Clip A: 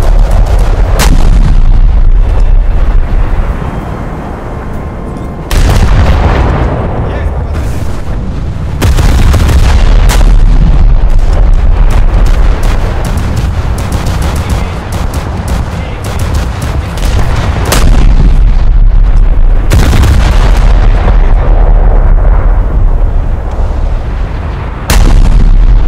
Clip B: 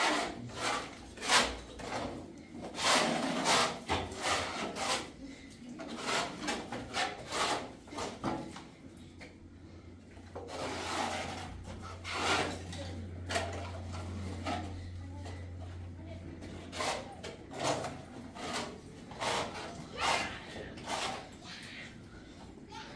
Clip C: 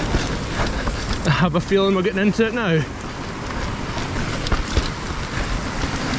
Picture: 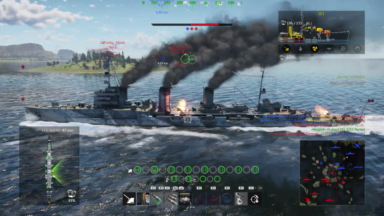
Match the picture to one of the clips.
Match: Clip A